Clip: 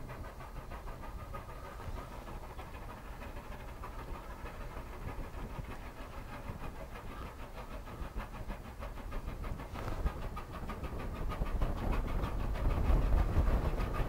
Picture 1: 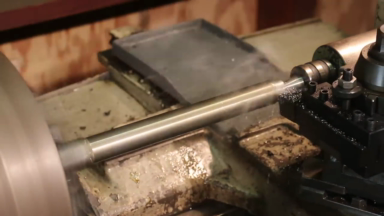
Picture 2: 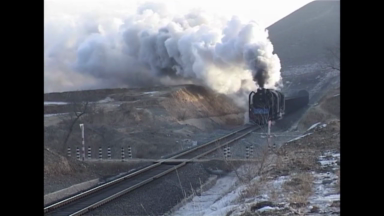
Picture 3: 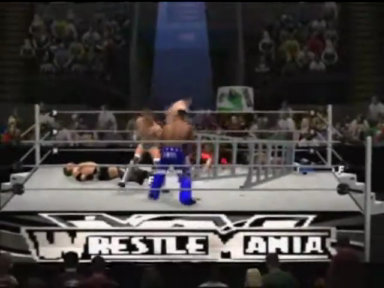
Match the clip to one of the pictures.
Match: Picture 2